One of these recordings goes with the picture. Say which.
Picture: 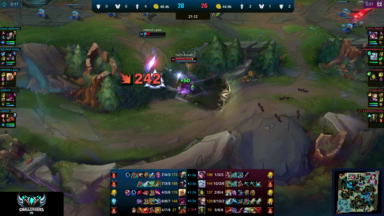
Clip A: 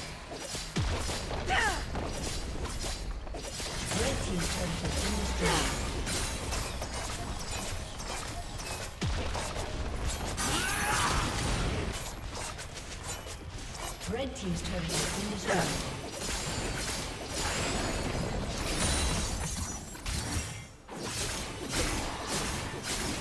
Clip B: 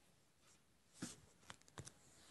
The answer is A